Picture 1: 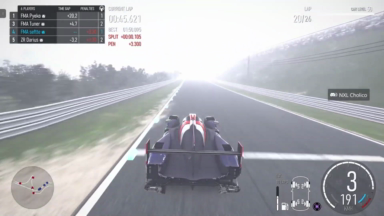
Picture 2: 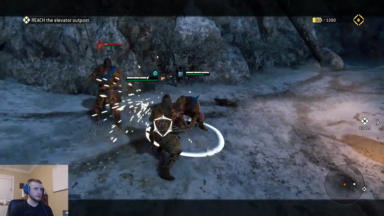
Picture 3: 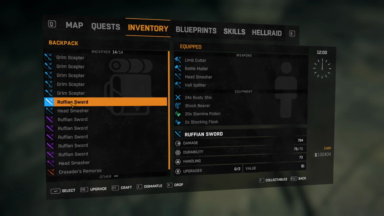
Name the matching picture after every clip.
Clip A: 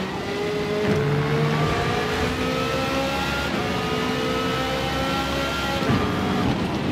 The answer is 1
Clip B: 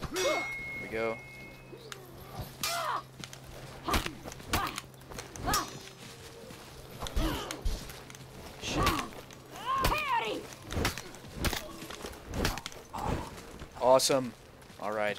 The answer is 2